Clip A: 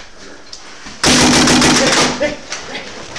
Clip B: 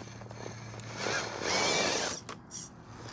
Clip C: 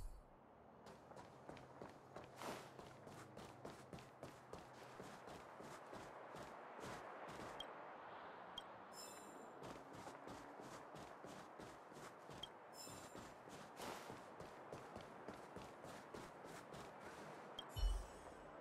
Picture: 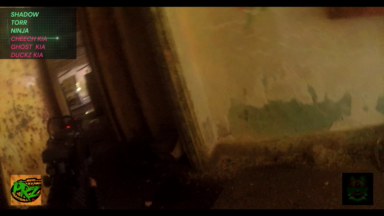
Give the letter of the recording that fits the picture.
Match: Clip A